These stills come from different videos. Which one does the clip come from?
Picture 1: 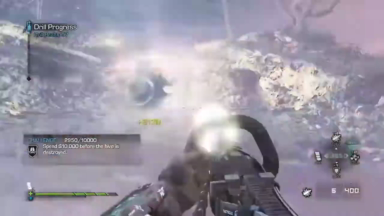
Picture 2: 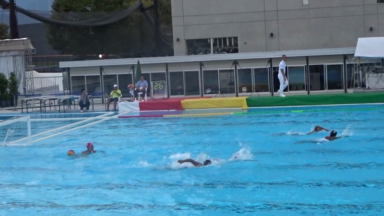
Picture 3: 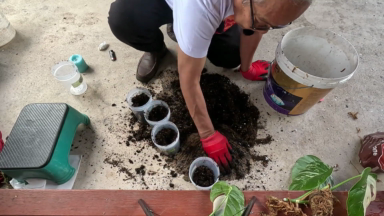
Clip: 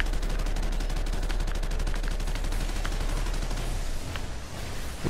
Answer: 1